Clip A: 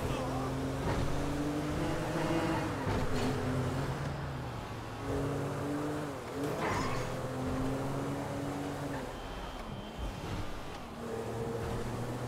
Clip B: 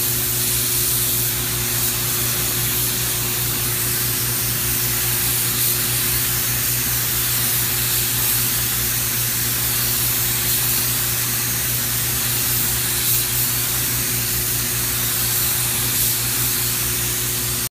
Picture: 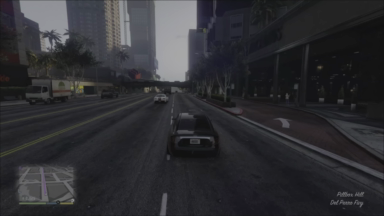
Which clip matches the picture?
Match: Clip A